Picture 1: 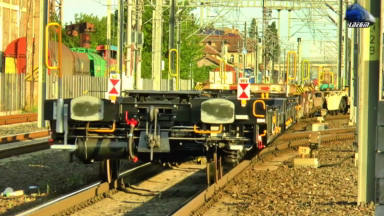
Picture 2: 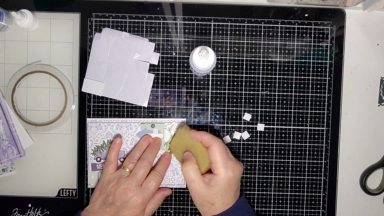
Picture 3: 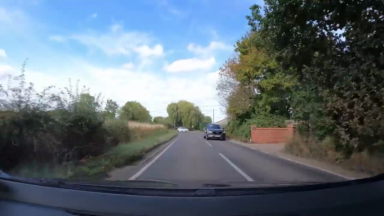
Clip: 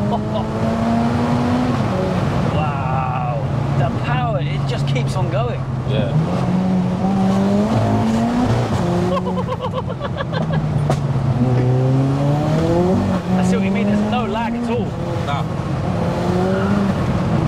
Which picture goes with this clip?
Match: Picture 3